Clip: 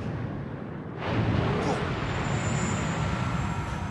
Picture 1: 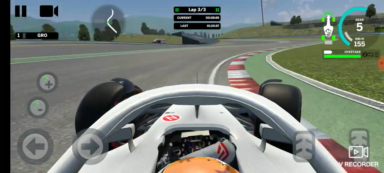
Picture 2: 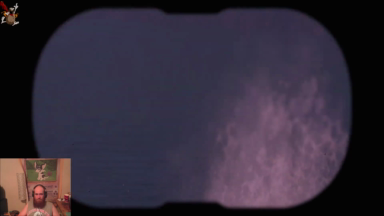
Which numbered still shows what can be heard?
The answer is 2